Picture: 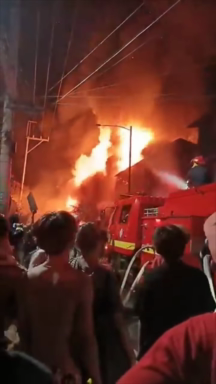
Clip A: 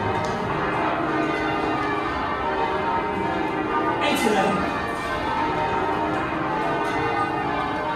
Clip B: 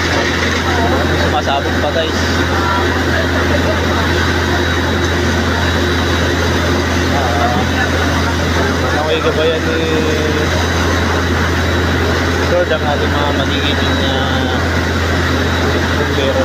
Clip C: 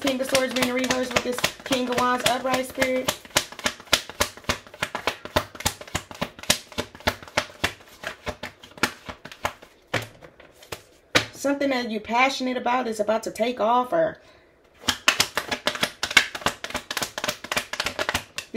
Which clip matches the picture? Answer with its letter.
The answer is B